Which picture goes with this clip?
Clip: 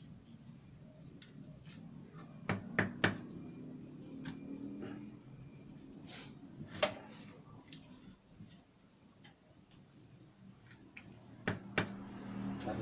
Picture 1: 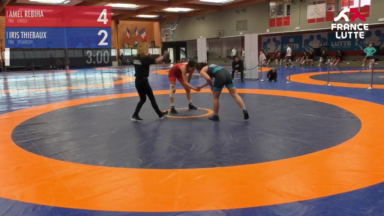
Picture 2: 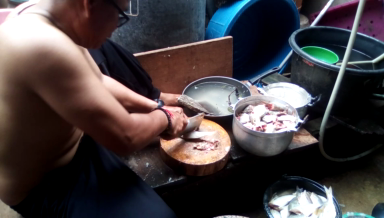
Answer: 2